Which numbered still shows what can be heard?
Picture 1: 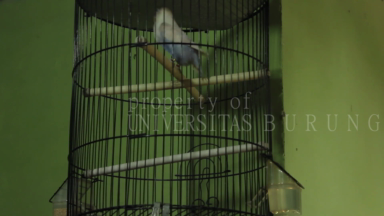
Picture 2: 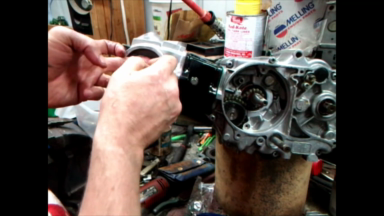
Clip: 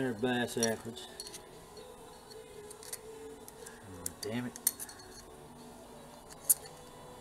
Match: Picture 2